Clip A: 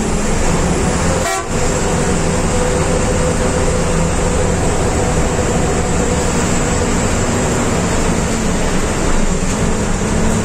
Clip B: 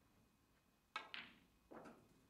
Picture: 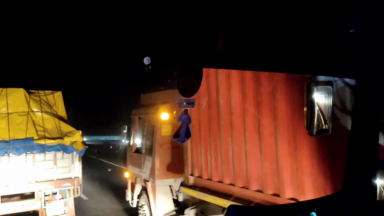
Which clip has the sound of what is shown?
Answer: A